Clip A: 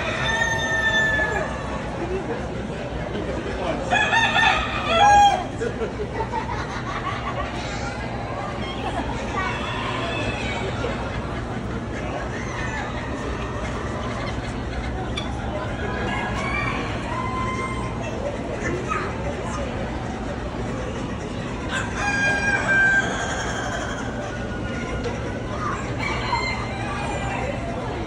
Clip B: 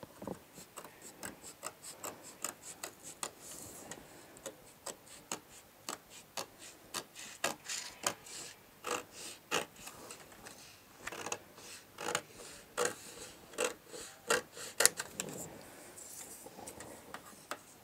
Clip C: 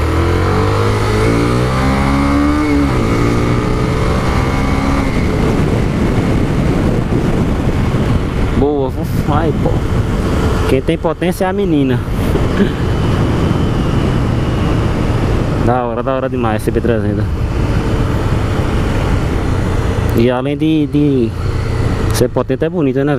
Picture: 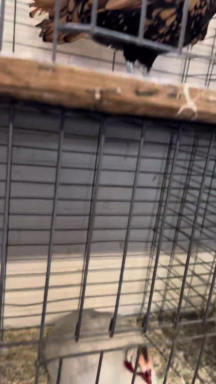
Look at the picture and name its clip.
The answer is A